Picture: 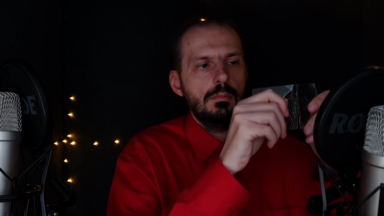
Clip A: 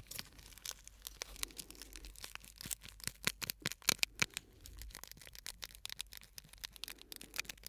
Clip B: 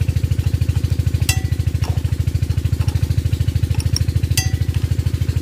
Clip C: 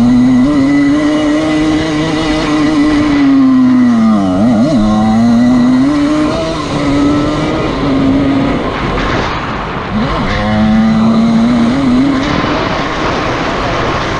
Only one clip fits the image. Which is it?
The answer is A